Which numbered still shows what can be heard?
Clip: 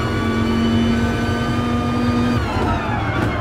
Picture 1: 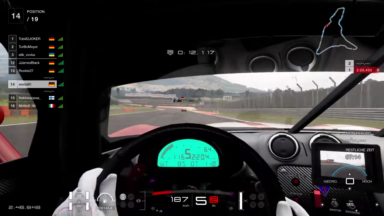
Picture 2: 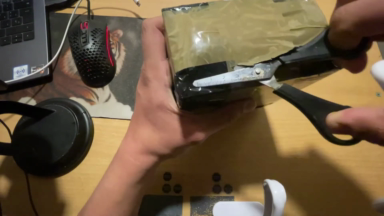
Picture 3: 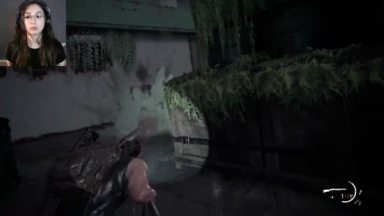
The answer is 1